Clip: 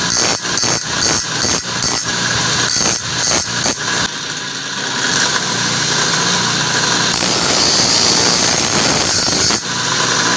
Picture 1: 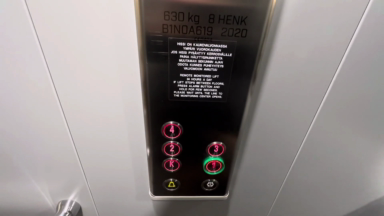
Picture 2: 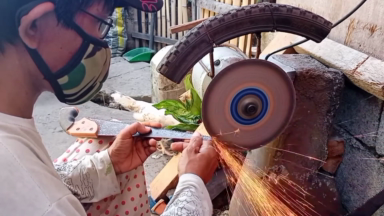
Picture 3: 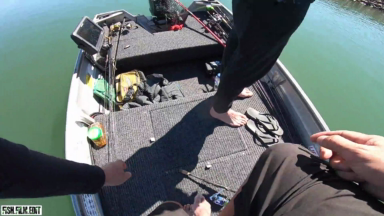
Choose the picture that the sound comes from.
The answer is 2